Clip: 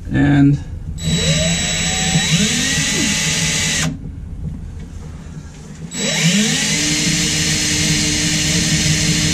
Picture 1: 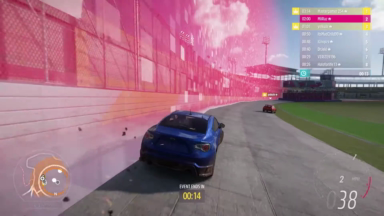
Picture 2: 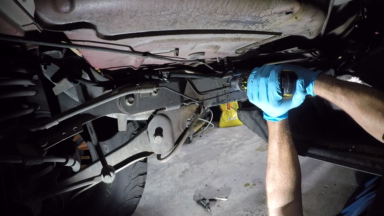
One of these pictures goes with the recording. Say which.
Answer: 2